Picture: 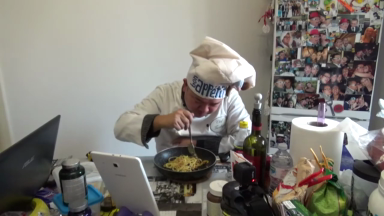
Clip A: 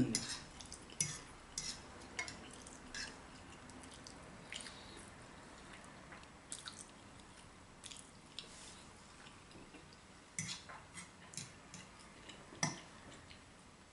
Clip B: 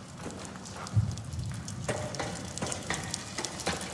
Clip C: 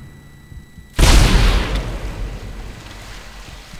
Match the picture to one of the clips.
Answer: A